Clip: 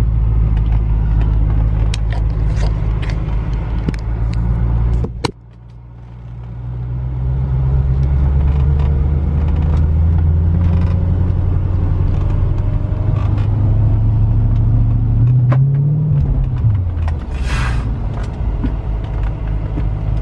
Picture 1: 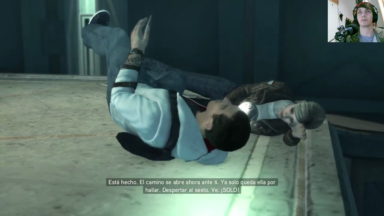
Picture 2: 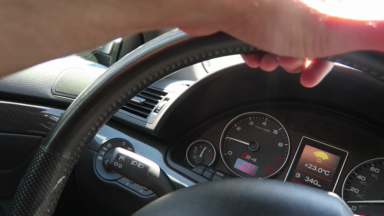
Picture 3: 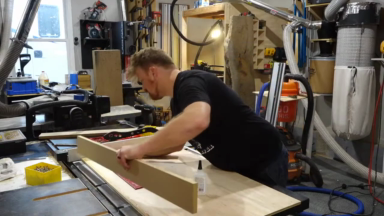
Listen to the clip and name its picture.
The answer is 2